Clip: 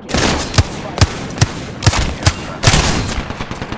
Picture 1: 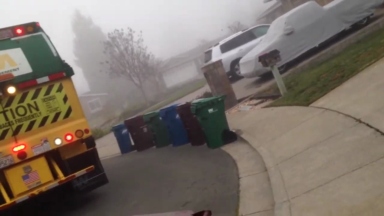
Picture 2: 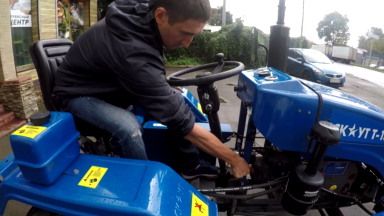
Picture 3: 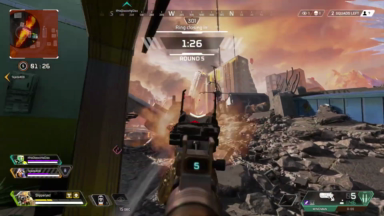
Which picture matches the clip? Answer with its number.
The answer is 3